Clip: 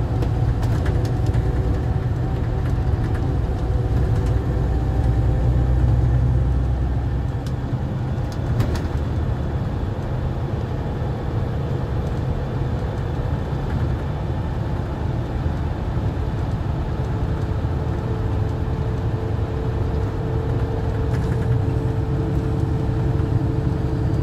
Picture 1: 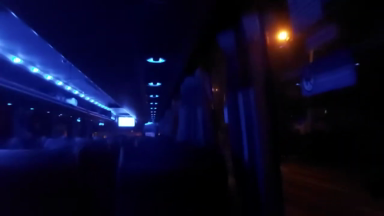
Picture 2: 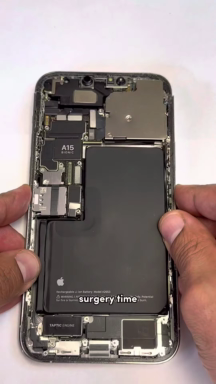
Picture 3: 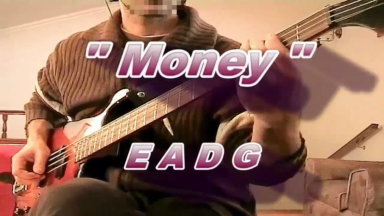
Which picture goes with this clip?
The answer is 1